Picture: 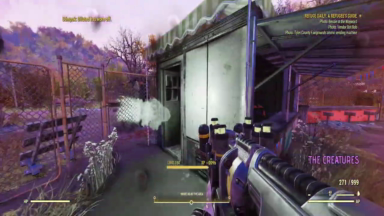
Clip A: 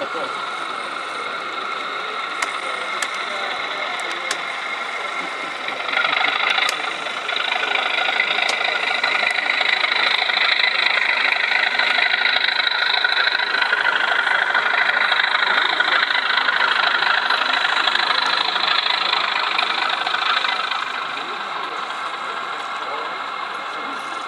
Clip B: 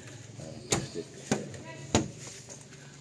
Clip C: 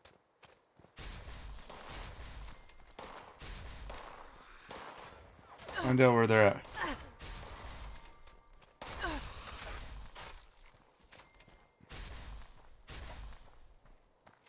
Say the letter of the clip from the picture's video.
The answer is C